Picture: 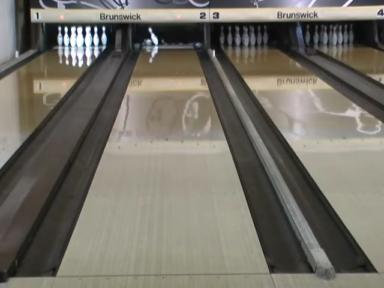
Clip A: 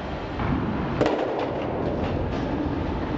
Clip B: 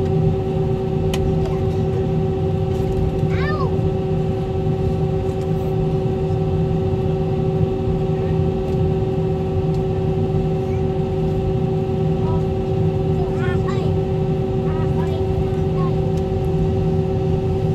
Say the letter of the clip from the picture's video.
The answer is A